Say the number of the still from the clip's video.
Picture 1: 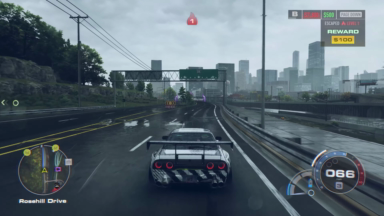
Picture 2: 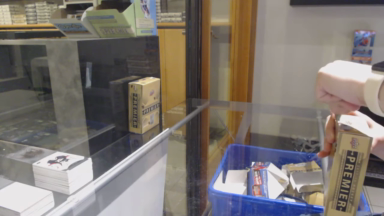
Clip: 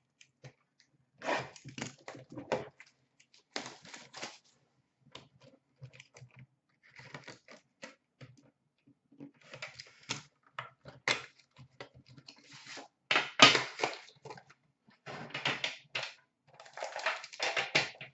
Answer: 2